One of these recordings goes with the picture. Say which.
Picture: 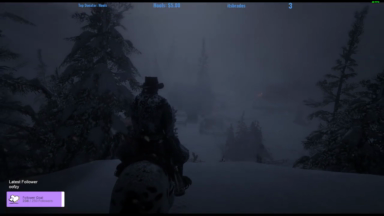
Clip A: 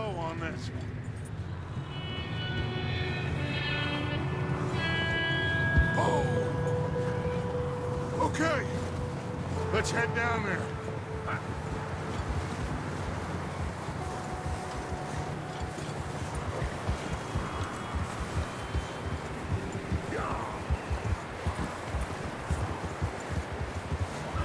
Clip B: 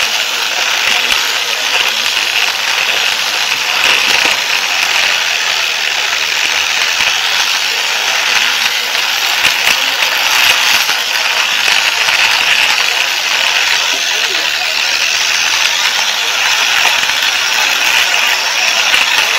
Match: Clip A